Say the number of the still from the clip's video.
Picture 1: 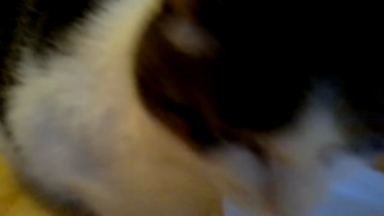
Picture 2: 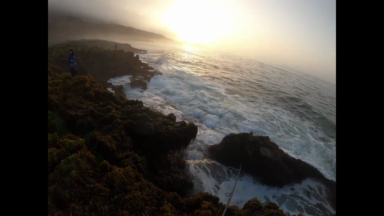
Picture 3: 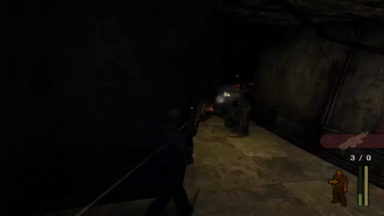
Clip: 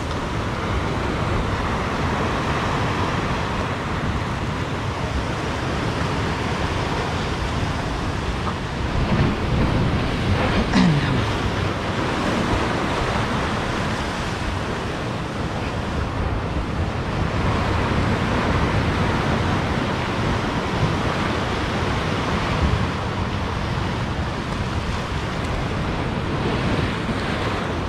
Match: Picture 2